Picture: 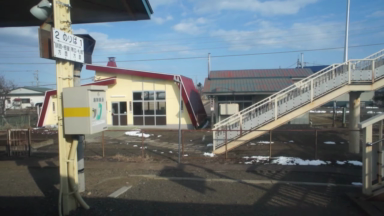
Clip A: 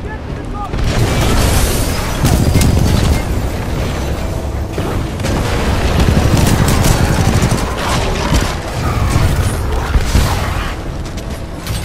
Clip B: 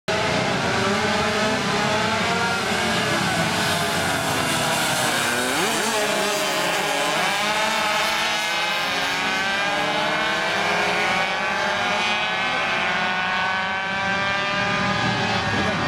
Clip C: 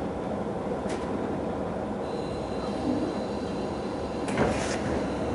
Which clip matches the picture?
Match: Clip C